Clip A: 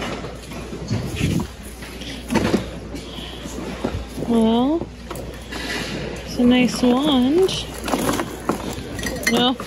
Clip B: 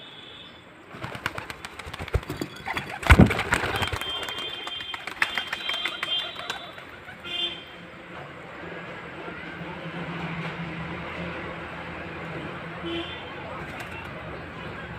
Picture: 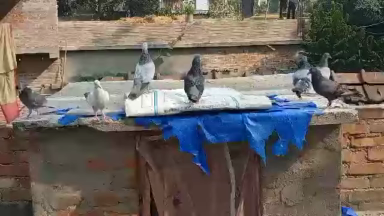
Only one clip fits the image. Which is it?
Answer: B